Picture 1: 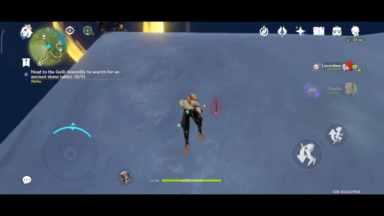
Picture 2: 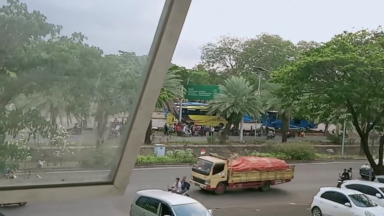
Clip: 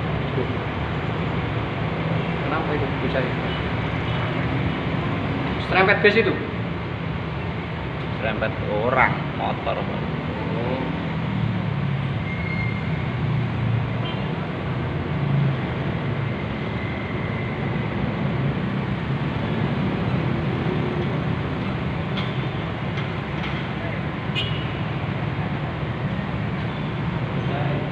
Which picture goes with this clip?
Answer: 2